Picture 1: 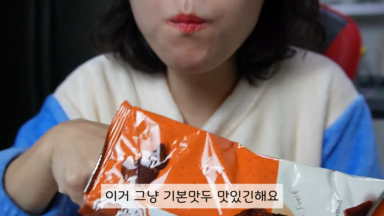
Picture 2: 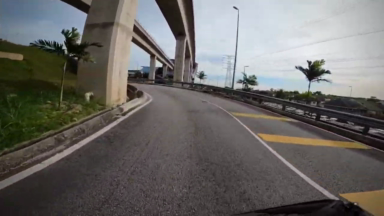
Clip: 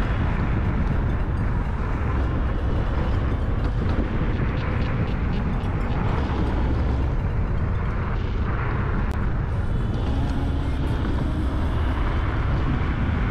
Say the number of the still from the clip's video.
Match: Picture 2